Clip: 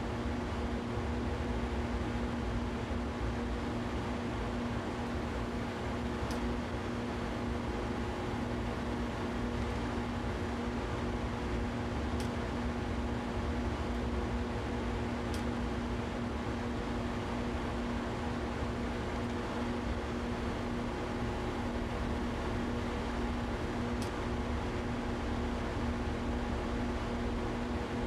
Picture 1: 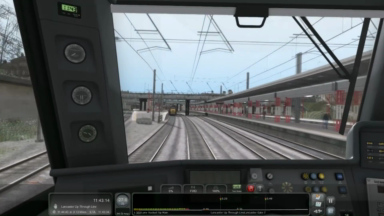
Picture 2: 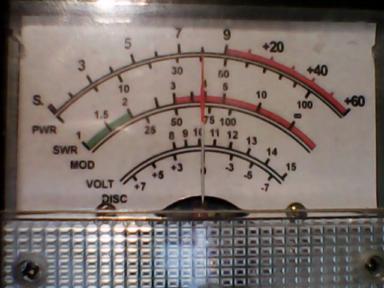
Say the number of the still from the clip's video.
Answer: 1